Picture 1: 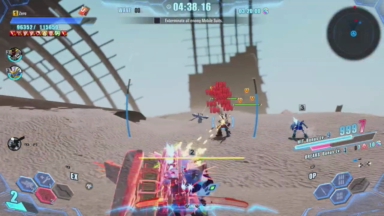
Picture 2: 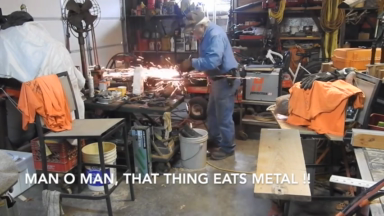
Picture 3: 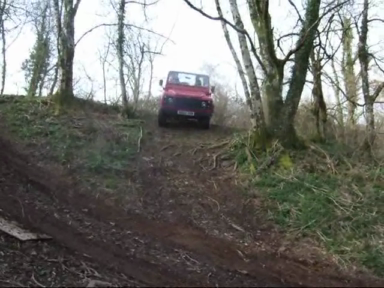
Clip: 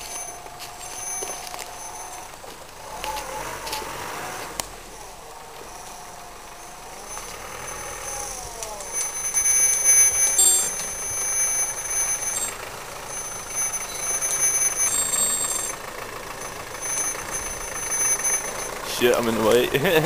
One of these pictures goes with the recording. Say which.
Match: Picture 3